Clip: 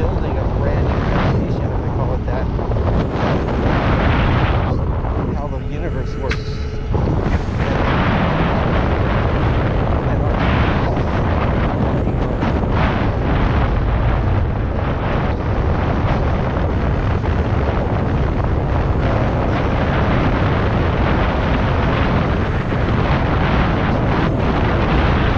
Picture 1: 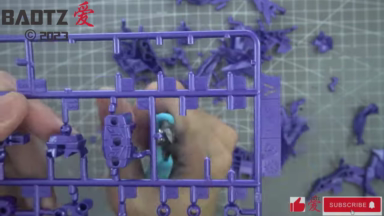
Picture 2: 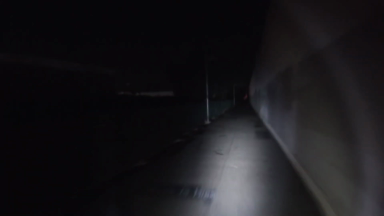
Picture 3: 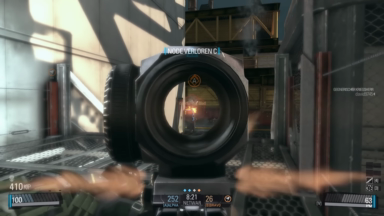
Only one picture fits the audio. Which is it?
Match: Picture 2